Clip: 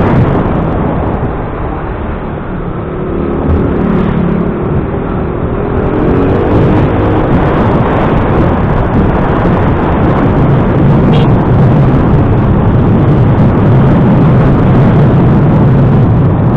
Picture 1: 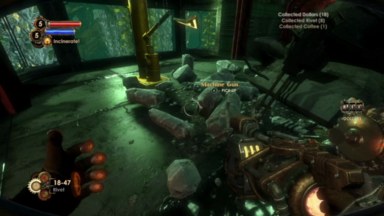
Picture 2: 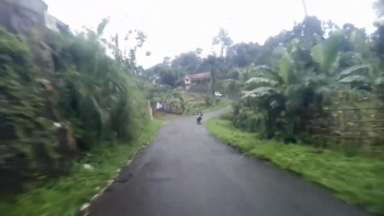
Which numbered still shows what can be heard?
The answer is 2